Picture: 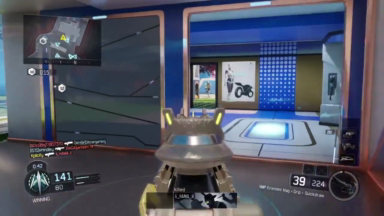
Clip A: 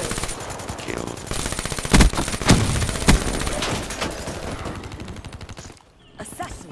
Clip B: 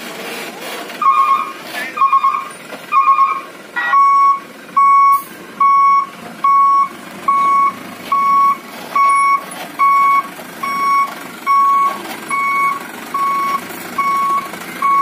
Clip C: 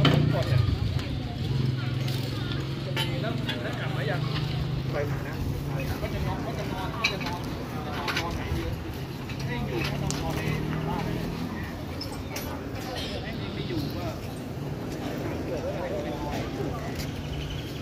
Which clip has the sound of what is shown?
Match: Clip A